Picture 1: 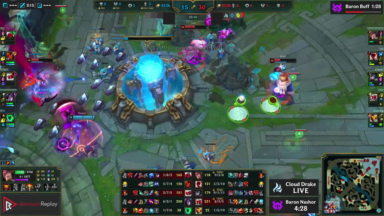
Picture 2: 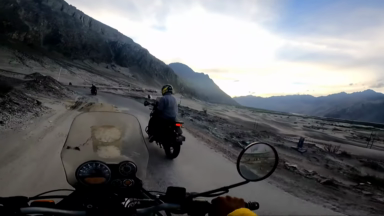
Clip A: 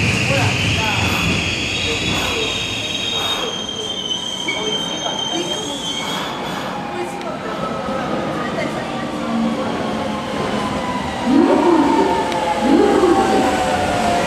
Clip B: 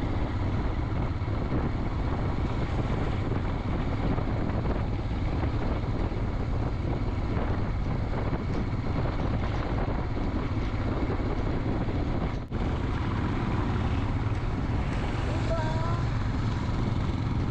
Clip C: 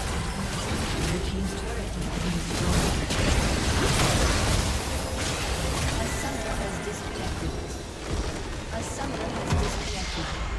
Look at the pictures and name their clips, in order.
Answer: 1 C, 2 B